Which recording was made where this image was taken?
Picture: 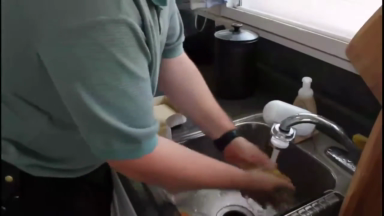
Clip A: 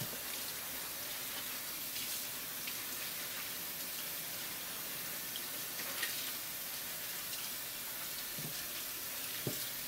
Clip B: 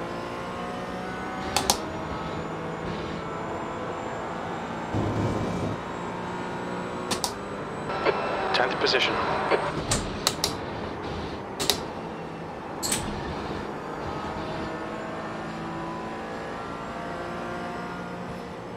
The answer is A